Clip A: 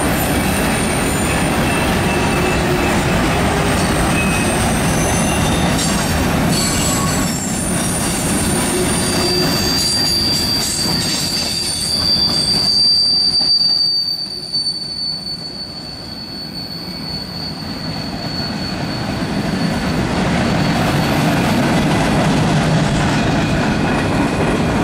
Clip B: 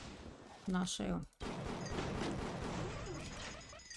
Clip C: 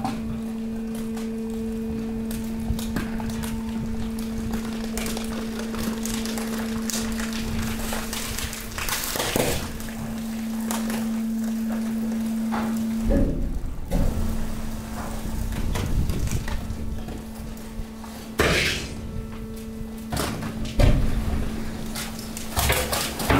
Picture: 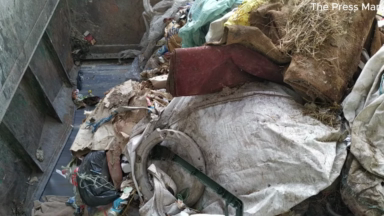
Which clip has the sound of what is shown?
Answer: C